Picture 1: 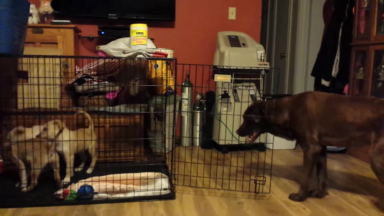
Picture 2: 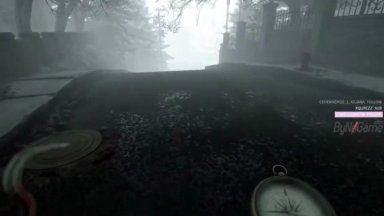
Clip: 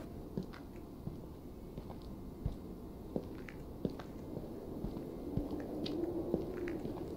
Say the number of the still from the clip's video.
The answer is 2